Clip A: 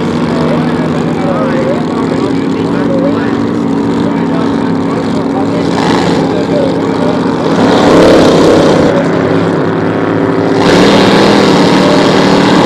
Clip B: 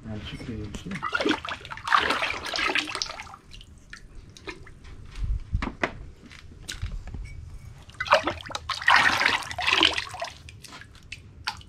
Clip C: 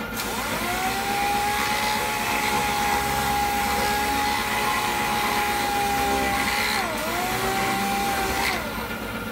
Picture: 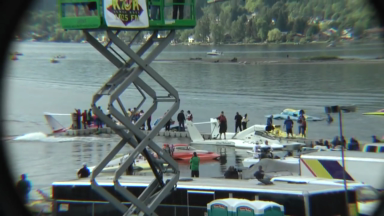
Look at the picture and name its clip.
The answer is A